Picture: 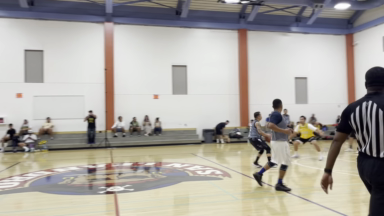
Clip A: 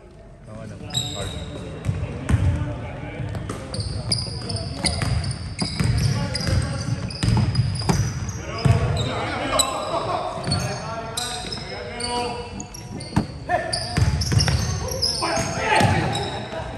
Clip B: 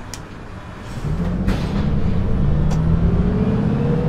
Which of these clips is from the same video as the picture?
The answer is A